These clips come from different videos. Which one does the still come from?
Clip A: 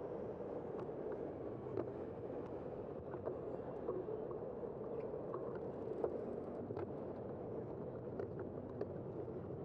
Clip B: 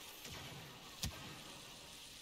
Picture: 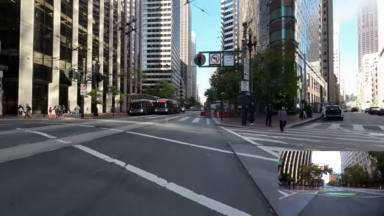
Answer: A